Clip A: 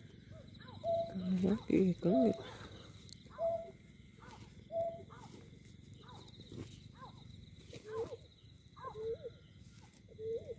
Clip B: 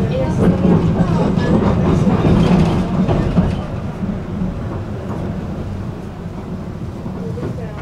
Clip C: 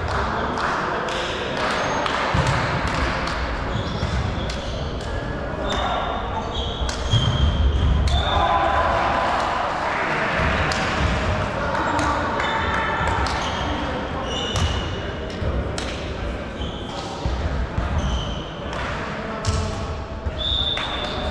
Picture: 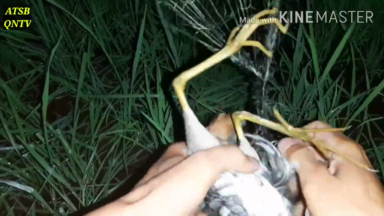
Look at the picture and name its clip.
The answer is A